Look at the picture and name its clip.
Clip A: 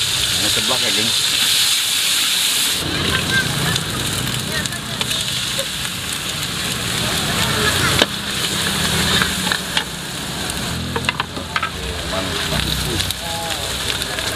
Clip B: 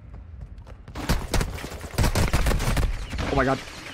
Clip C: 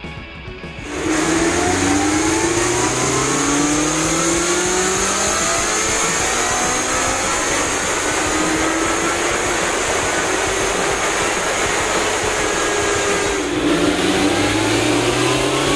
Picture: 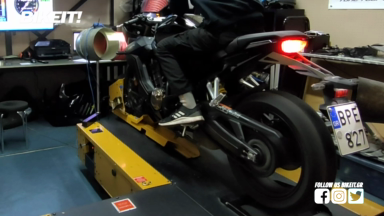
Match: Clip C